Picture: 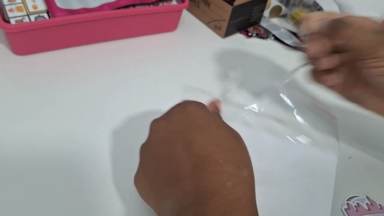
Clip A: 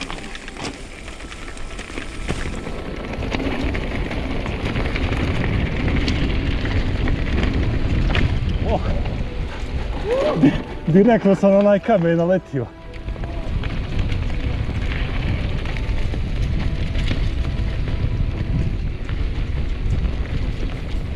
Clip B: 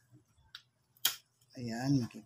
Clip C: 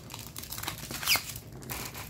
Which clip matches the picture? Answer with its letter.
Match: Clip C